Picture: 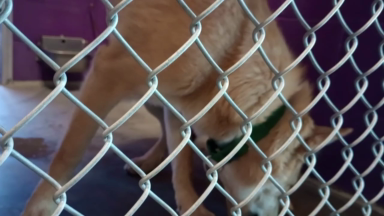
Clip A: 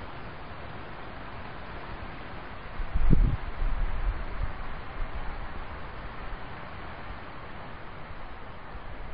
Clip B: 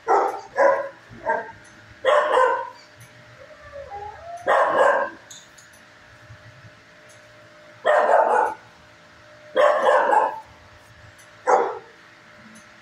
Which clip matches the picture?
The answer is B